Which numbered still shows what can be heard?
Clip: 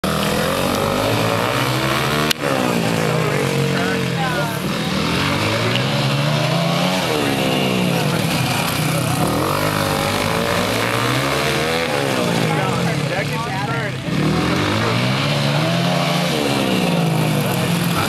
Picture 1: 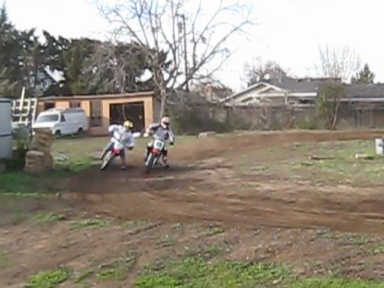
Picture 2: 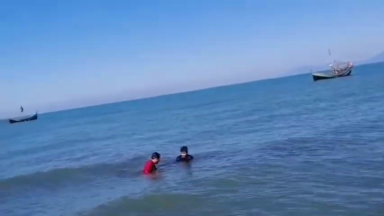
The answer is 1